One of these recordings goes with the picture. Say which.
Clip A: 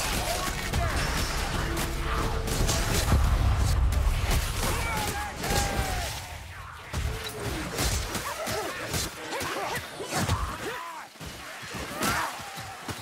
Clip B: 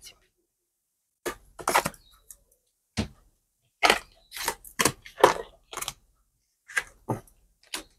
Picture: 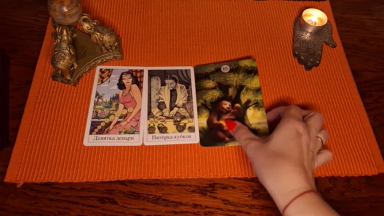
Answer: B